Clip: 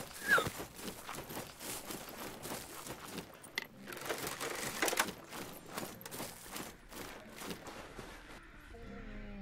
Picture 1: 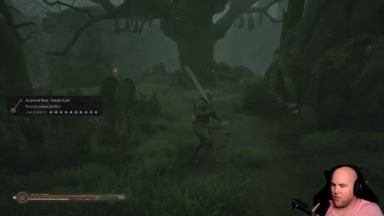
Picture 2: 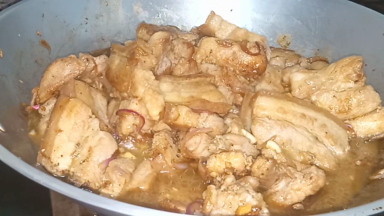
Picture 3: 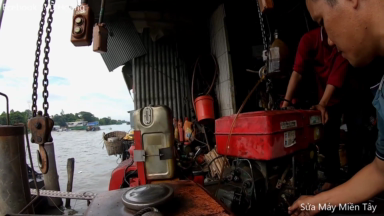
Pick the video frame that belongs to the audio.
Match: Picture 1